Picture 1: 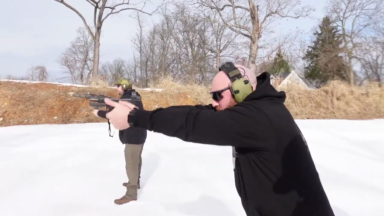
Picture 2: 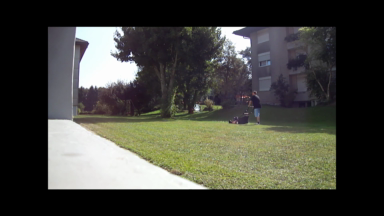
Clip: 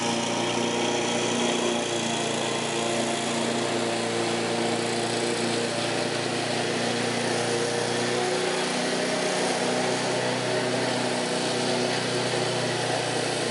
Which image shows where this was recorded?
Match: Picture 2